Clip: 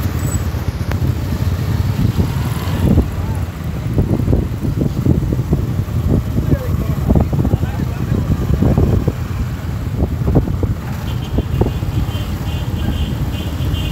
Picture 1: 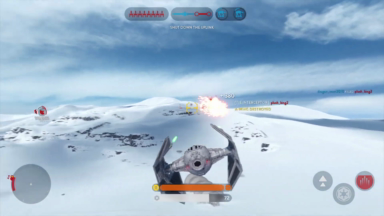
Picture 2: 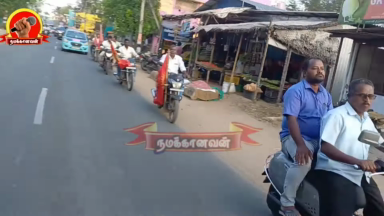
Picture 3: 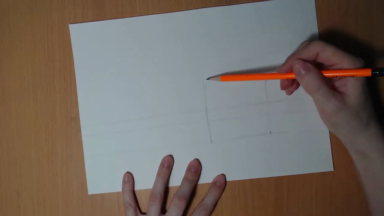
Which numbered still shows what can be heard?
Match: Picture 2